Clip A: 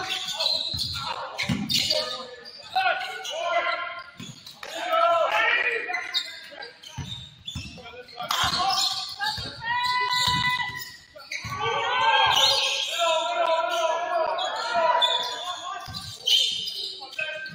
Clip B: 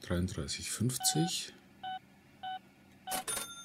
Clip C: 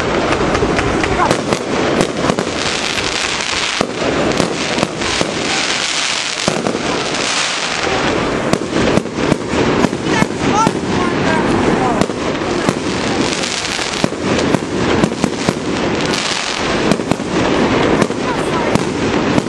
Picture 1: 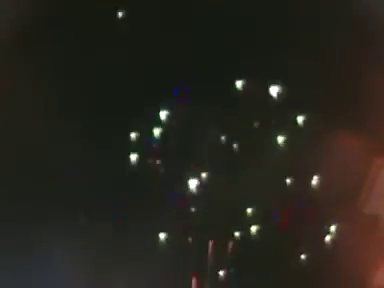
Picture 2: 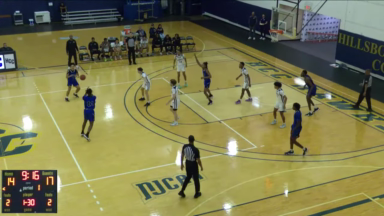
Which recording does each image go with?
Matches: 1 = C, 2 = A